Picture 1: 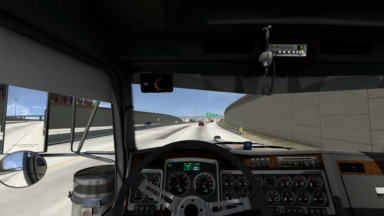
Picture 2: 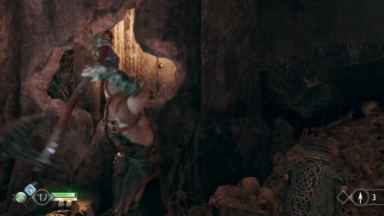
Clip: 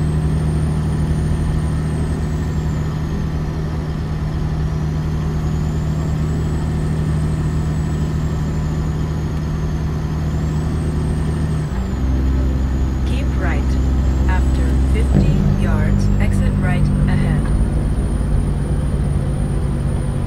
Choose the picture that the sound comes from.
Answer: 1